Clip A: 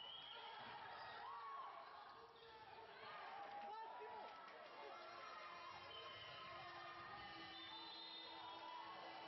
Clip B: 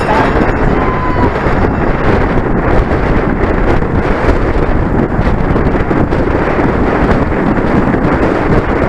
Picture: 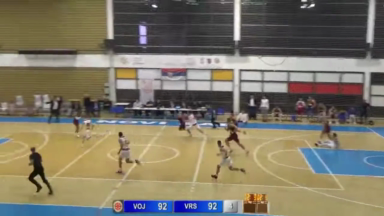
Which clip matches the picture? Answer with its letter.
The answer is A